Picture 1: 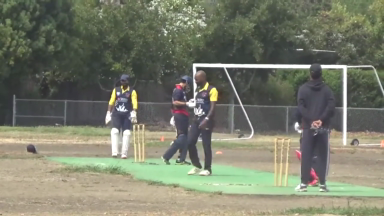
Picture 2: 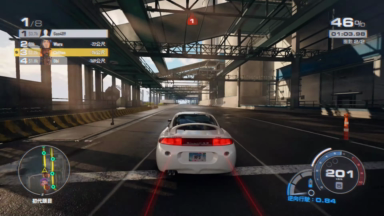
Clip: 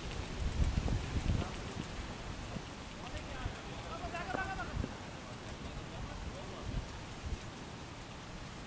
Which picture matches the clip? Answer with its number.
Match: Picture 1